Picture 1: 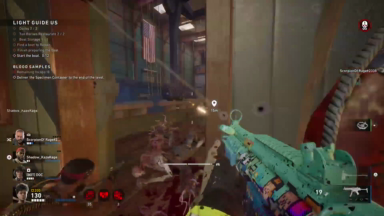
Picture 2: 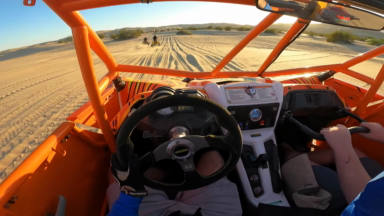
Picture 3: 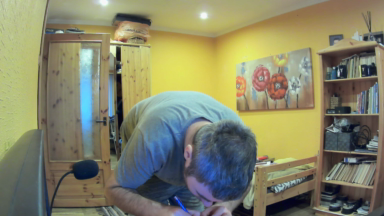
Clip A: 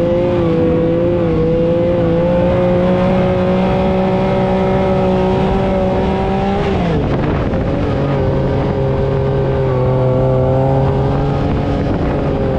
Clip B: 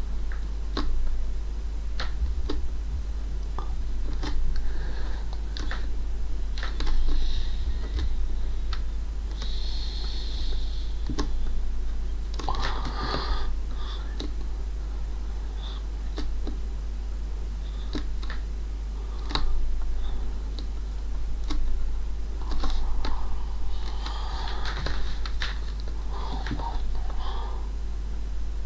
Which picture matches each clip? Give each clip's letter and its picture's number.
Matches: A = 2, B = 3